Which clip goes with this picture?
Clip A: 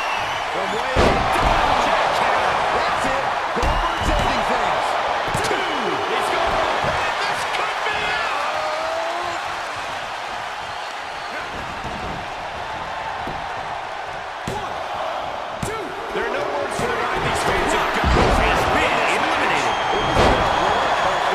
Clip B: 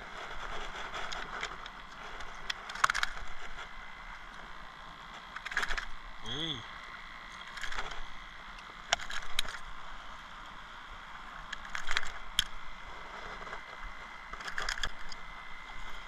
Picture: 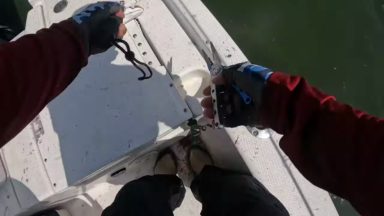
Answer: B